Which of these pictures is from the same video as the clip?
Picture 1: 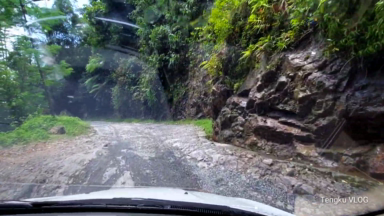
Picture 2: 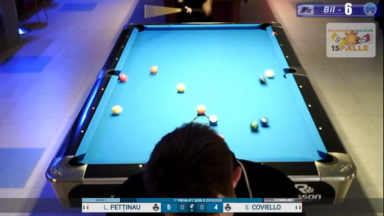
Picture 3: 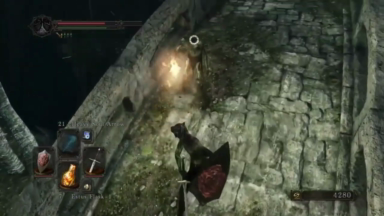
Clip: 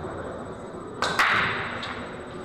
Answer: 2